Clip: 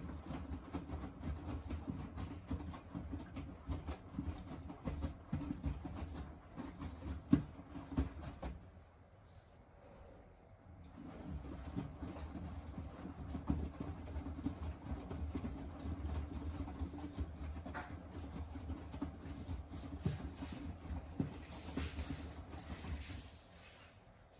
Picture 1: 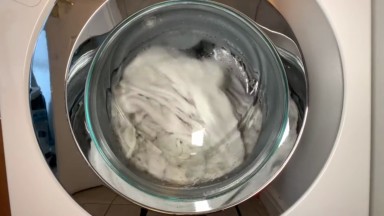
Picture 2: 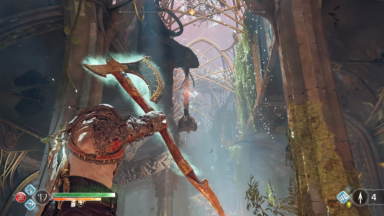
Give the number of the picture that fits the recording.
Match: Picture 1